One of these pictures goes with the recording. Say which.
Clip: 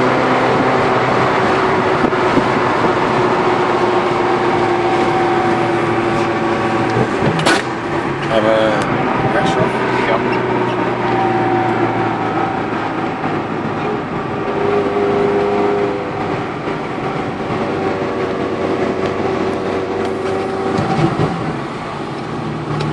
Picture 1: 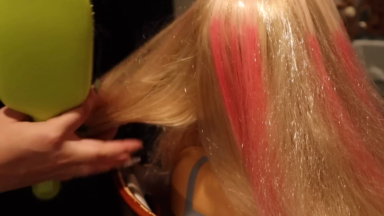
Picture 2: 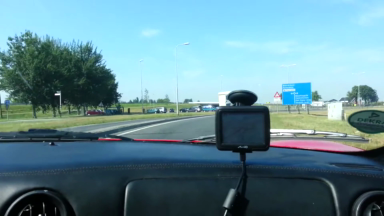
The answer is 2